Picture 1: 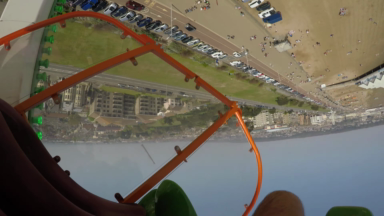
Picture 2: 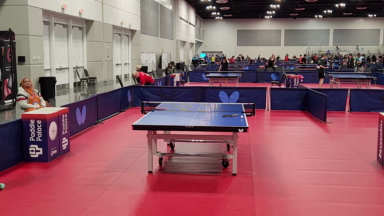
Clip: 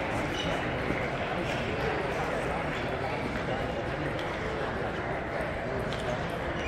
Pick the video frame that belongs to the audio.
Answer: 2